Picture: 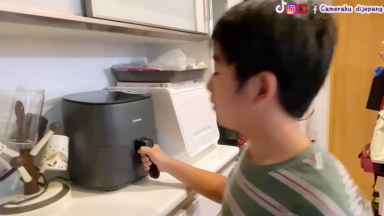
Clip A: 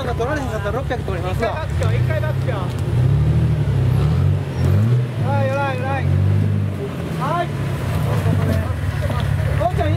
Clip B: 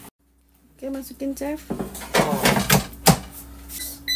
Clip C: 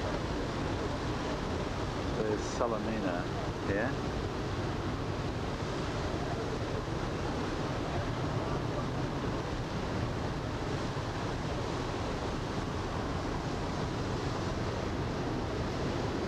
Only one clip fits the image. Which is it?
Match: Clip B